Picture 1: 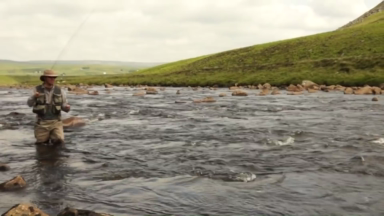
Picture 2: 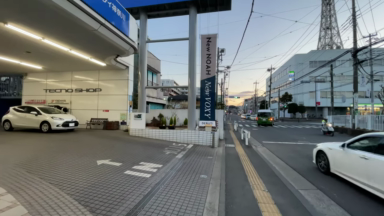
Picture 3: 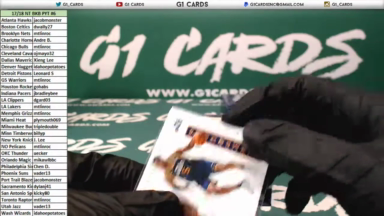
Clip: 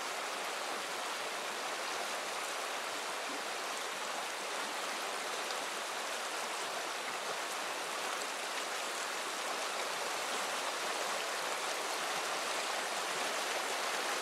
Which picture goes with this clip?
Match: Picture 1